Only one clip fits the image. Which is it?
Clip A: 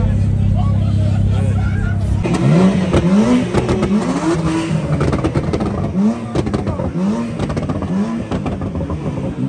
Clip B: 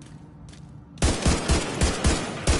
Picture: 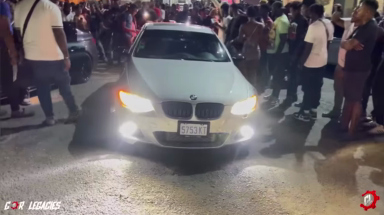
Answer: A